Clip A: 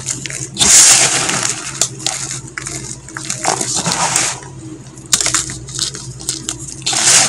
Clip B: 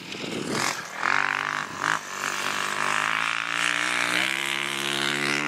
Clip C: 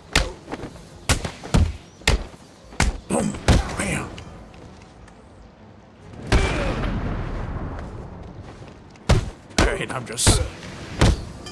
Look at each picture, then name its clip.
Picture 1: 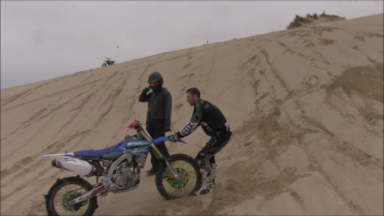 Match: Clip B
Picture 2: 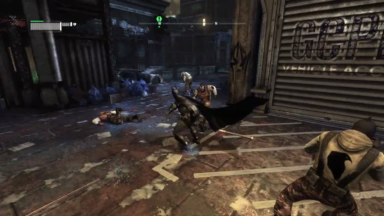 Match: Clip C